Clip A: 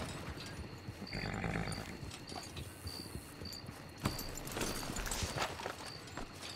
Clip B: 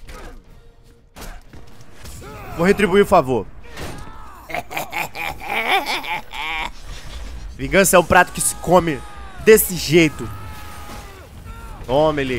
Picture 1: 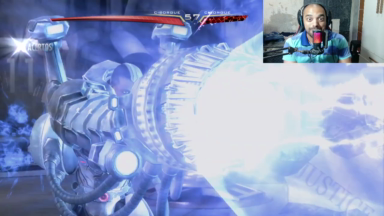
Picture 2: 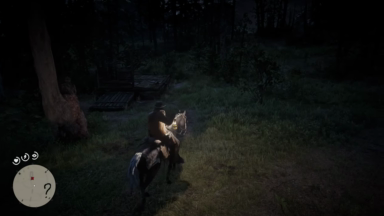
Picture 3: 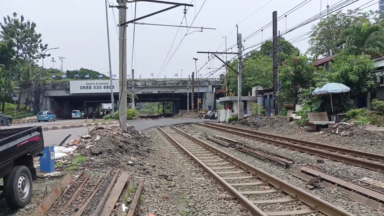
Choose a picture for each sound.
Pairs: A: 2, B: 1